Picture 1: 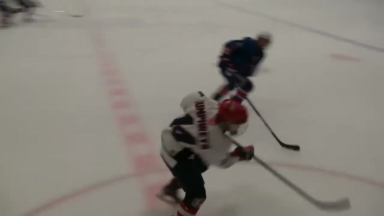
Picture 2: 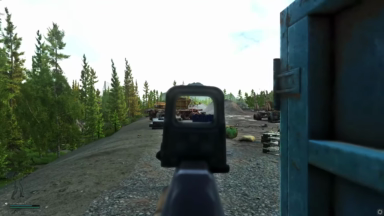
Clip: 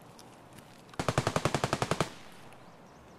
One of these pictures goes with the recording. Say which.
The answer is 2